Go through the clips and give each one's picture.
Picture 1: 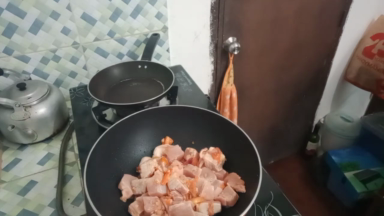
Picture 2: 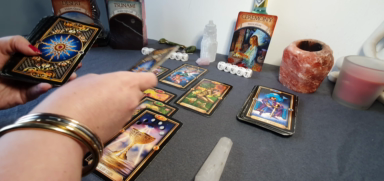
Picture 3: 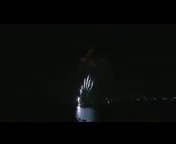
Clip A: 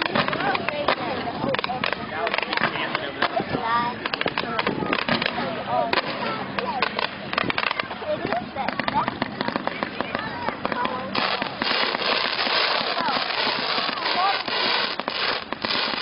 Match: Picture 3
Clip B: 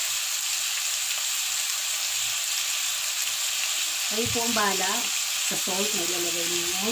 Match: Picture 1